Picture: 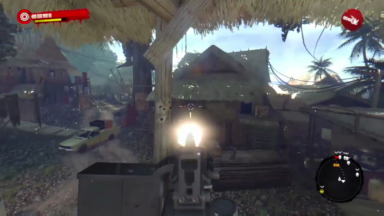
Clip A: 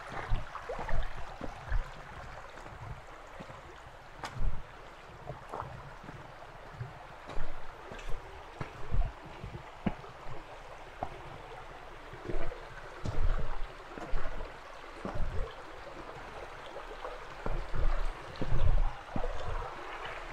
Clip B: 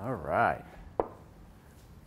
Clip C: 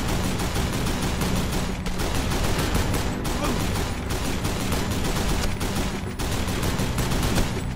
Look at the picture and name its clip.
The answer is C